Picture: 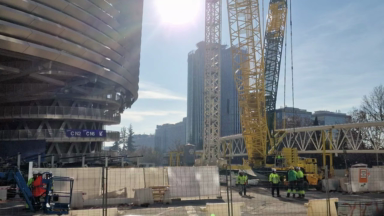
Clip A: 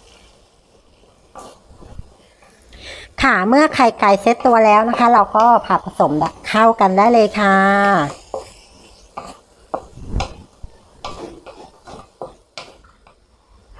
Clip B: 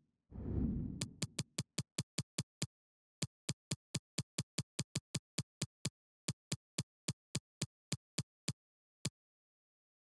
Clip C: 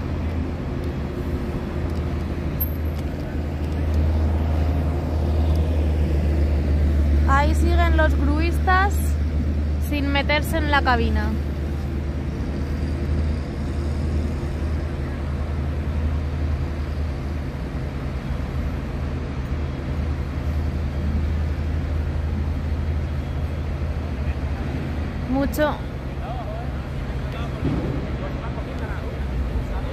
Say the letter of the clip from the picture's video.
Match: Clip C